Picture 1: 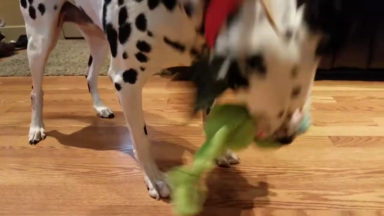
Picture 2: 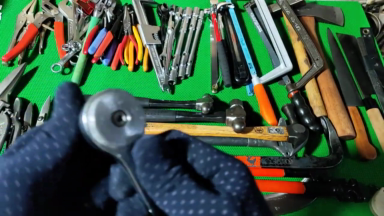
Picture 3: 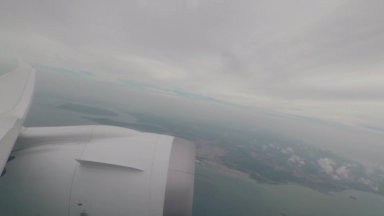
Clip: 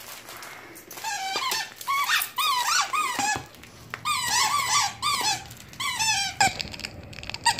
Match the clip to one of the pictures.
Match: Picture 1